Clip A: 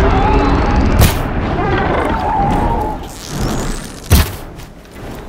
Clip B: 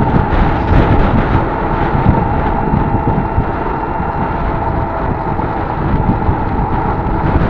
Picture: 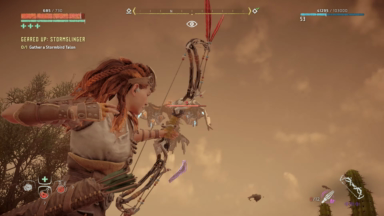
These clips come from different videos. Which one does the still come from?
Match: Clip A